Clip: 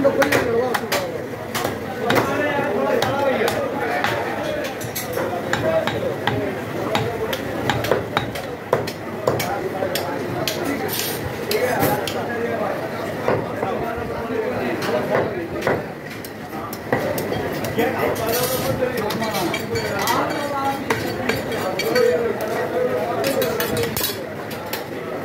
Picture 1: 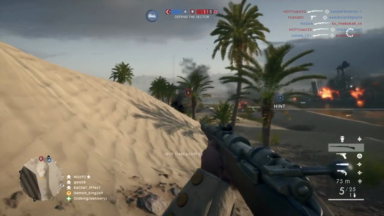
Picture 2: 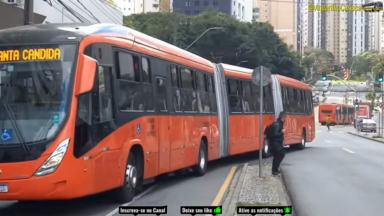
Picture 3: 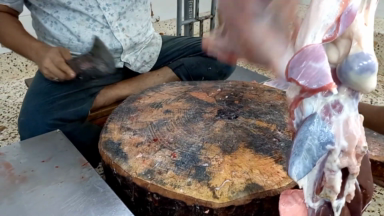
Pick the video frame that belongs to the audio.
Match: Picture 3